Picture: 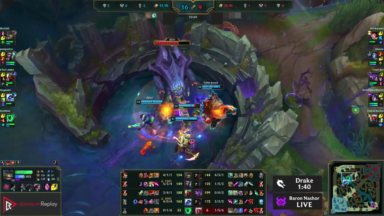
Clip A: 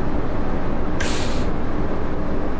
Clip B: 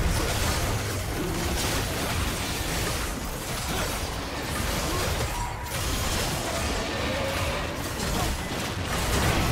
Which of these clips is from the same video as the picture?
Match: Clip B